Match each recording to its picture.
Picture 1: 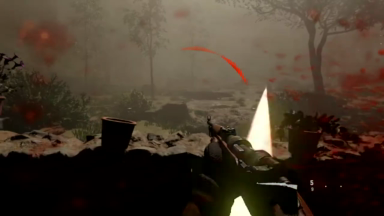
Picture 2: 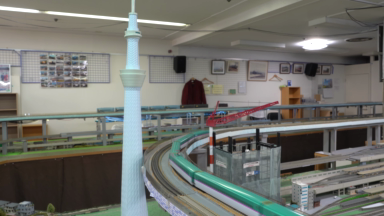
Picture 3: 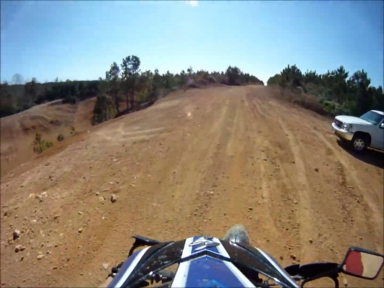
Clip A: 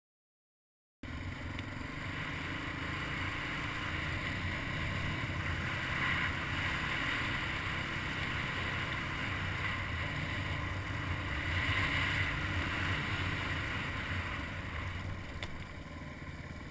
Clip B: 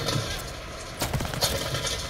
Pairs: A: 3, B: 1